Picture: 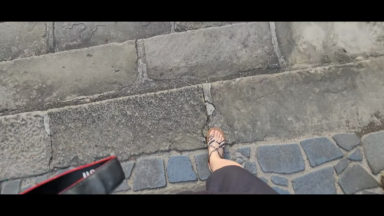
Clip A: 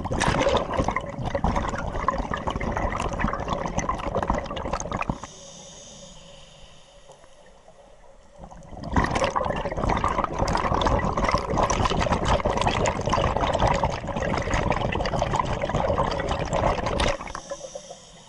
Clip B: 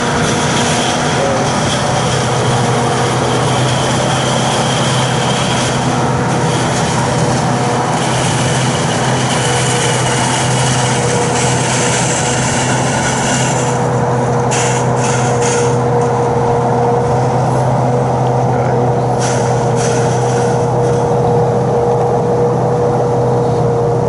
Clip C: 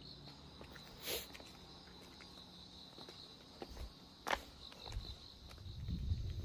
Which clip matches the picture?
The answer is C